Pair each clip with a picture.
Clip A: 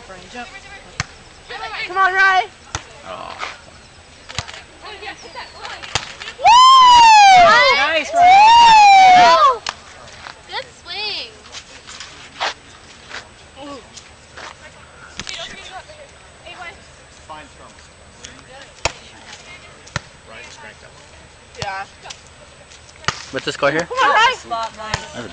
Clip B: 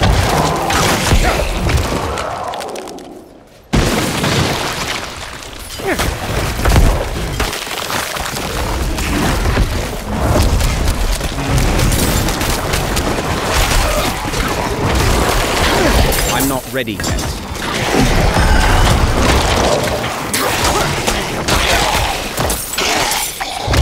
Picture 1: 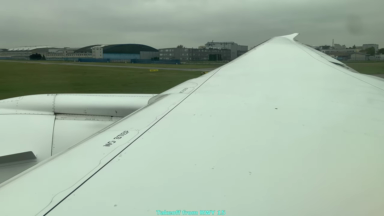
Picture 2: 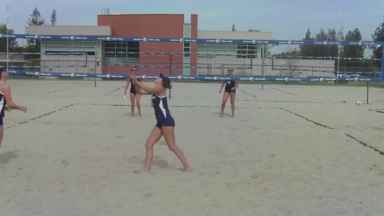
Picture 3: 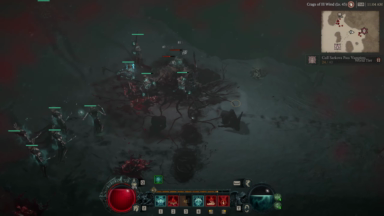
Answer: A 2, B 3